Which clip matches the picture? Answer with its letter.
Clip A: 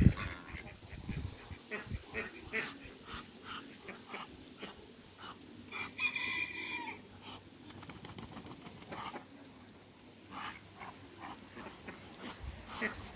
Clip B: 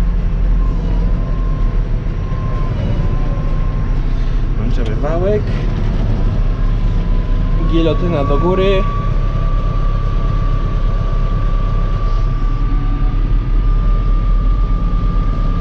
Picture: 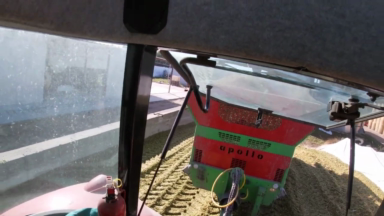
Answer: B